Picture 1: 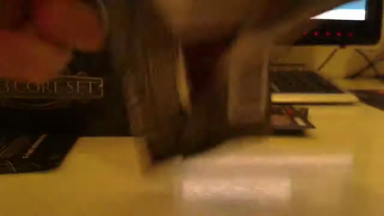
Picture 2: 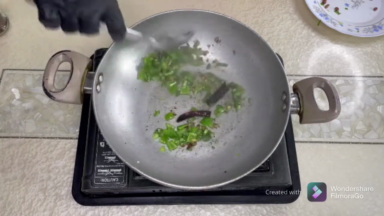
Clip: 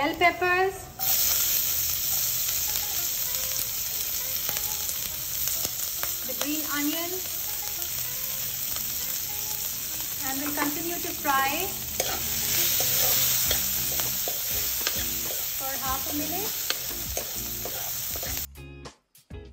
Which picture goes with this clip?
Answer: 2